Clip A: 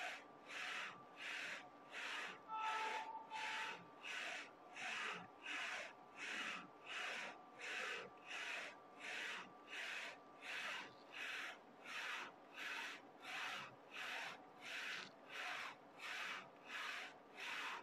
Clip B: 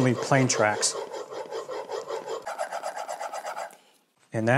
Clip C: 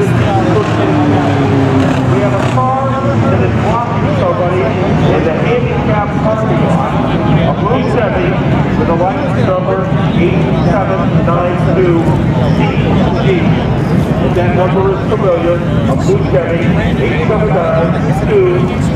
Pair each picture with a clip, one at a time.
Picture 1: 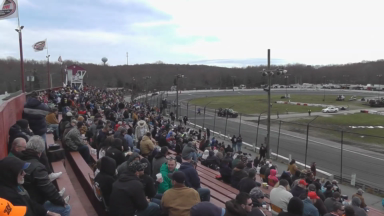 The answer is C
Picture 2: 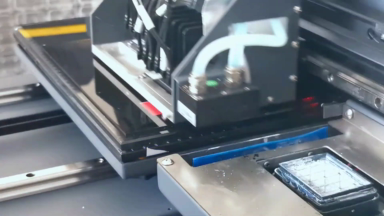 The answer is A